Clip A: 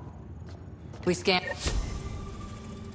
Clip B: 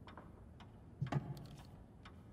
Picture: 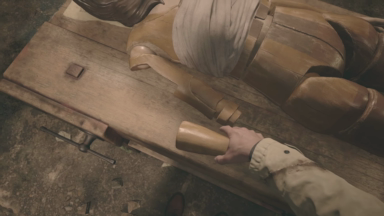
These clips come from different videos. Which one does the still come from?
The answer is B